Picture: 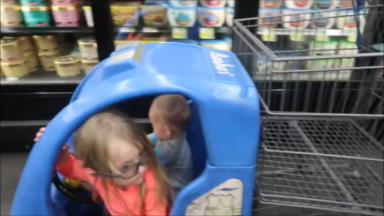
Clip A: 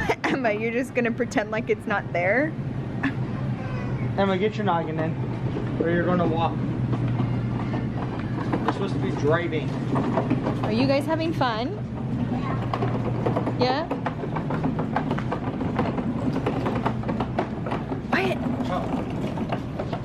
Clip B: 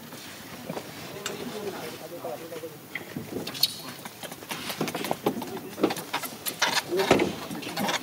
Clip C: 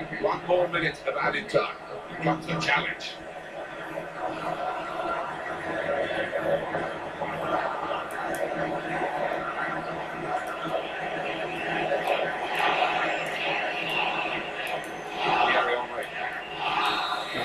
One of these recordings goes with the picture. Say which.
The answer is A